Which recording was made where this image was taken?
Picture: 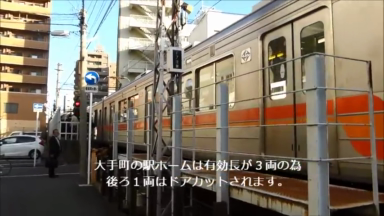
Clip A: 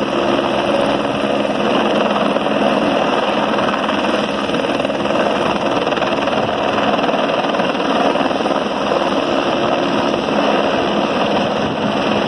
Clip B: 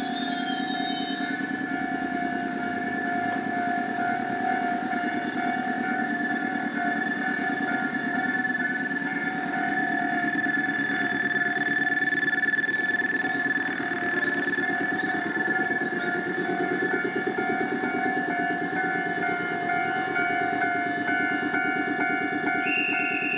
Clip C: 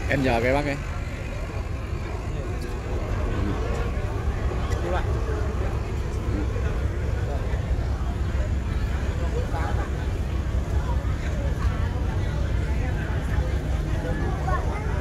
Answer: B